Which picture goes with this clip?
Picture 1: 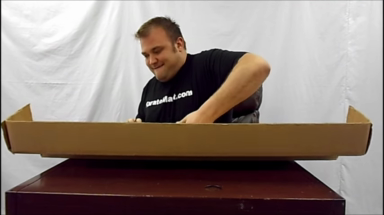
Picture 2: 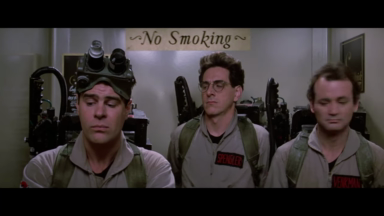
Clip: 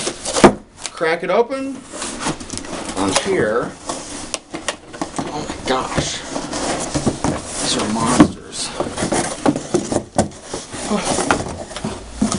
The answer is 1